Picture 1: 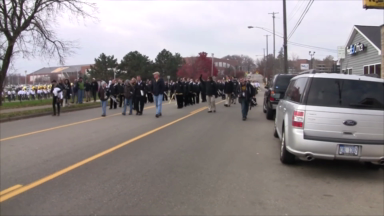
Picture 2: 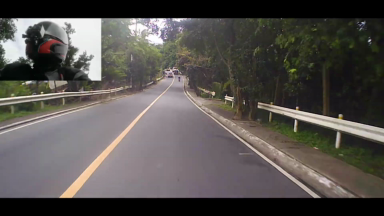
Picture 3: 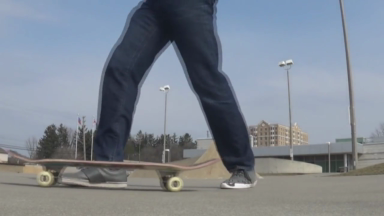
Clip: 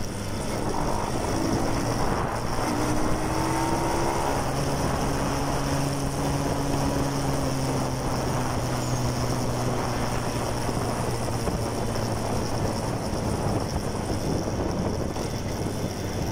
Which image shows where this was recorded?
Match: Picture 2